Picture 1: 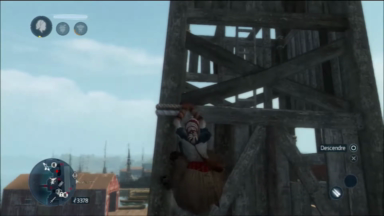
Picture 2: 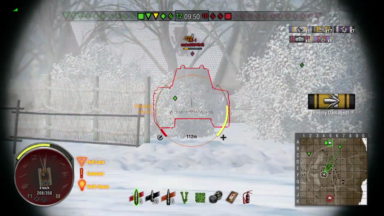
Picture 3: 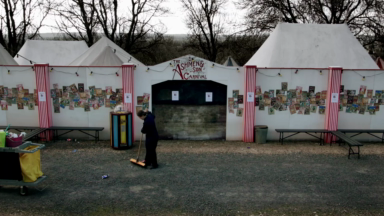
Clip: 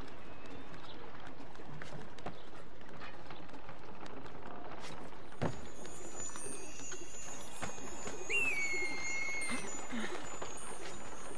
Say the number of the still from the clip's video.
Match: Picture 1